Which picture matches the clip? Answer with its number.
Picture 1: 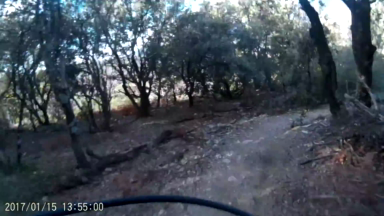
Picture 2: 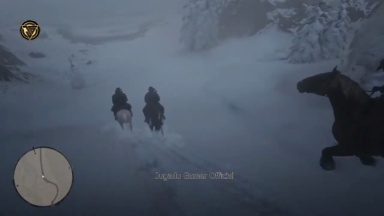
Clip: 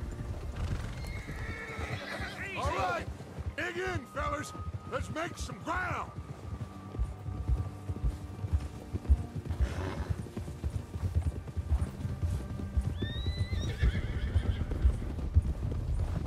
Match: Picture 2